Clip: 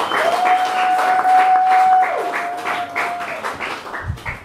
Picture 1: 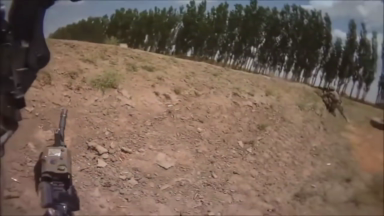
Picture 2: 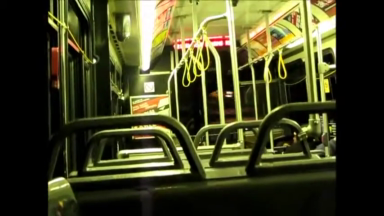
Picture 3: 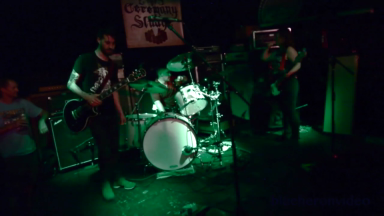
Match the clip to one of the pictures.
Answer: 3